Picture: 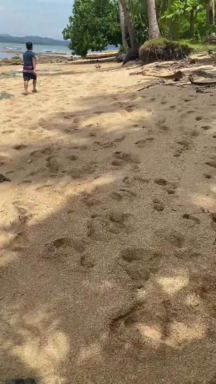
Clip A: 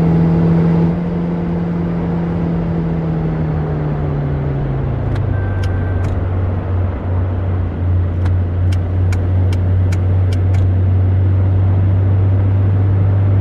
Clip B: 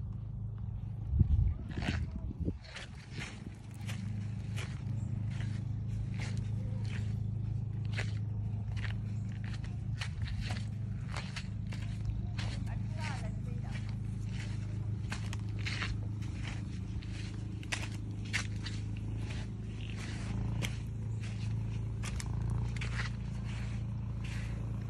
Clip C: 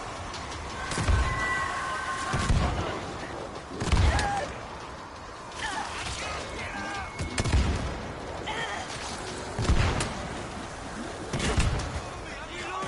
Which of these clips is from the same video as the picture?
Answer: B